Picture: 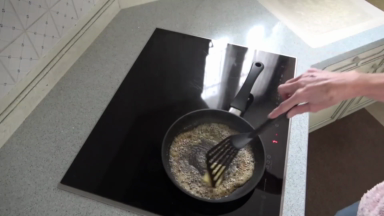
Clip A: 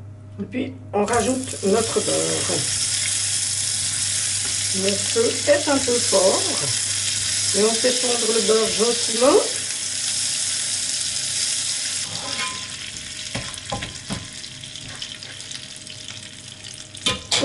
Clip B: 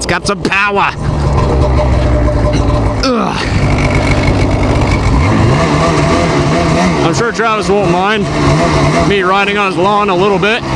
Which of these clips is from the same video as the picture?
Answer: A